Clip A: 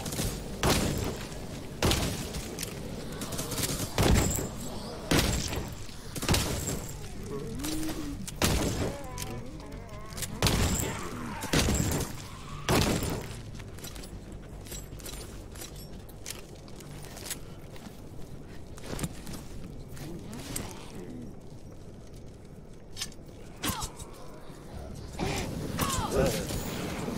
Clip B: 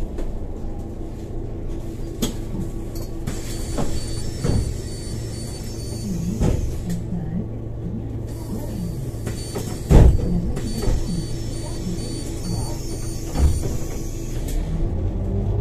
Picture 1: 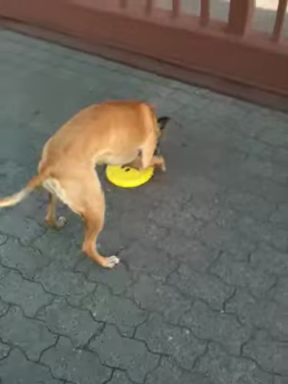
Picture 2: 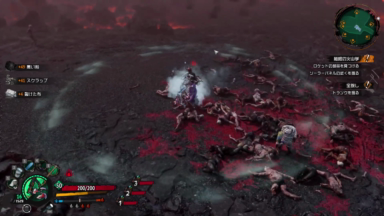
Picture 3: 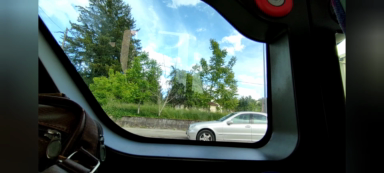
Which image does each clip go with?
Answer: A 2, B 3